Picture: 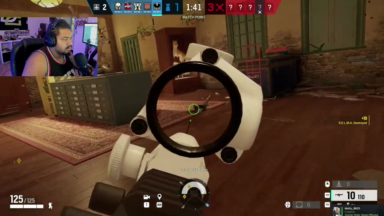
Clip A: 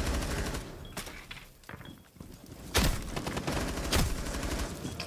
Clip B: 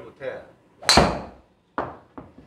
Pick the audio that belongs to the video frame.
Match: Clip A